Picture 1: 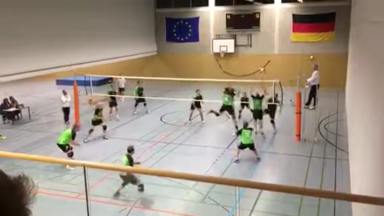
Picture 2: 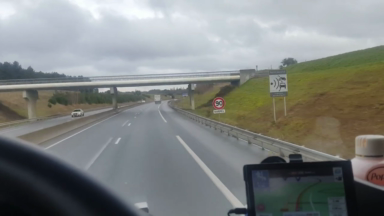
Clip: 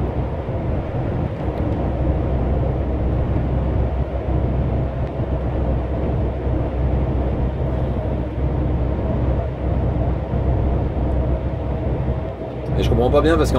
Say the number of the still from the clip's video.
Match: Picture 2